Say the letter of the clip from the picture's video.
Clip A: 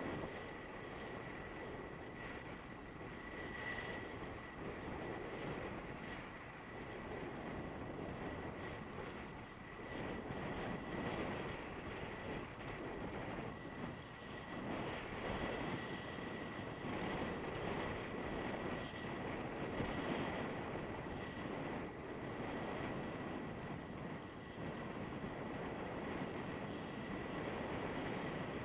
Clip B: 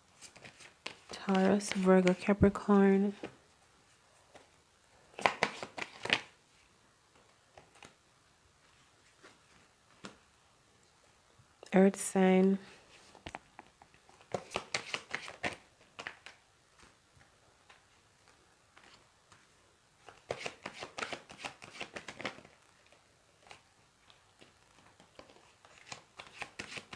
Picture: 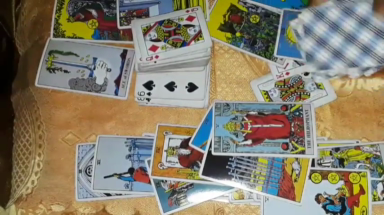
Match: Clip B